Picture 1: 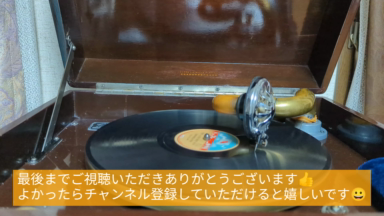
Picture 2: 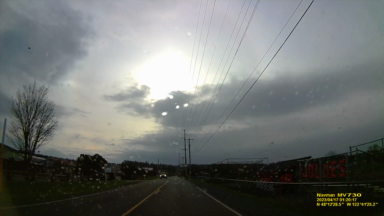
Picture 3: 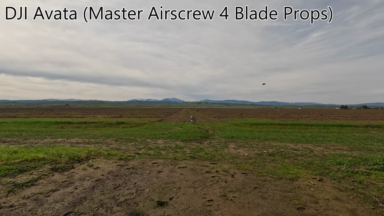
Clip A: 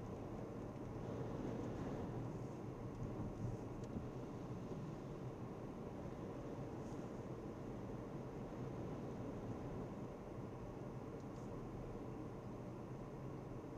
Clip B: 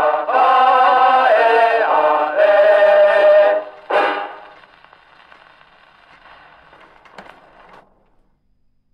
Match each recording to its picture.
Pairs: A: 2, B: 1